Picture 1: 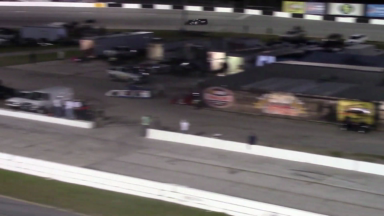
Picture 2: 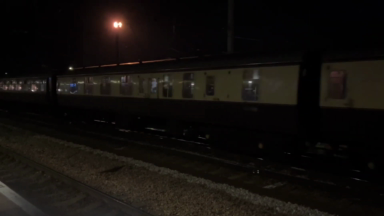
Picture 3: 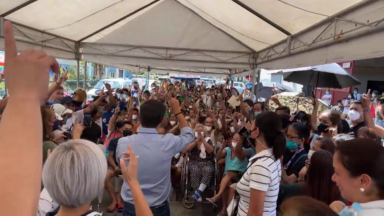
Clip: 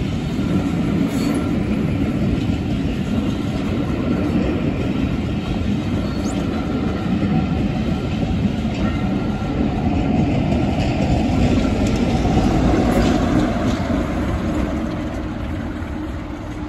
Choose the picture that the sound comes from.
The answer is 2